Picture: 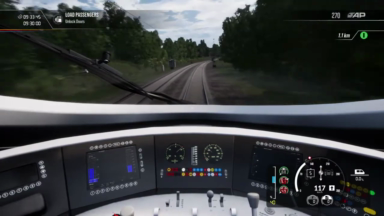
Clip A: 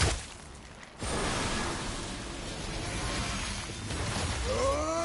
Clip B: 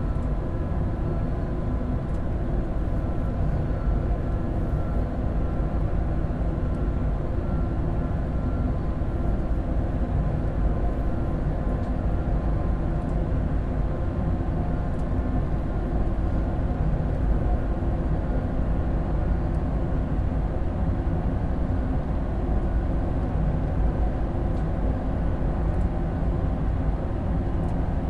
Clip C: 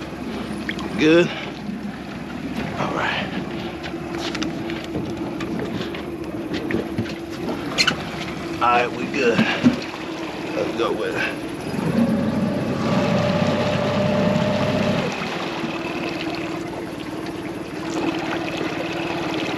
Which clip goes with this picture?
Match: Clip B